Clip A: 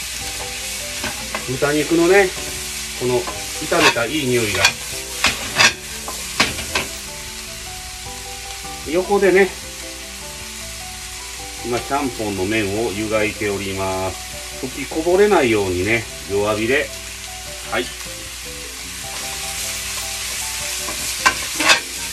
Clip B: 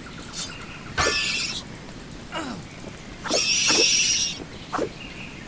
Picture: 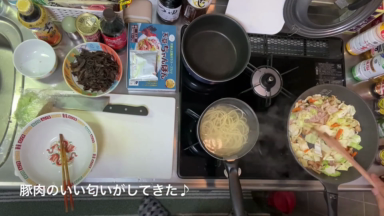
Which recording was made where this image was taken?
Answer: A